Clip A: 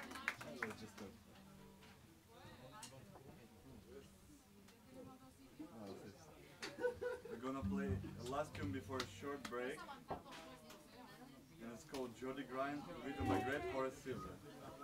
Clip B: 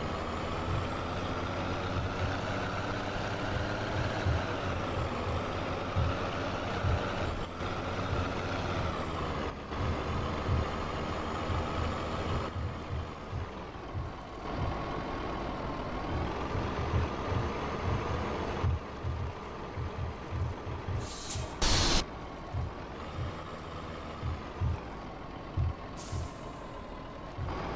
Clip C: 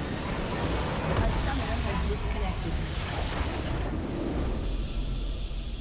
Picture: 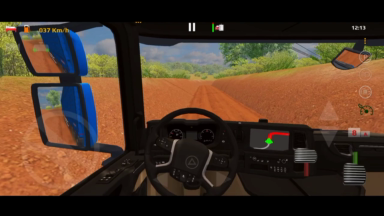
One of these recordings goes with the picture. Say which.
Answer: B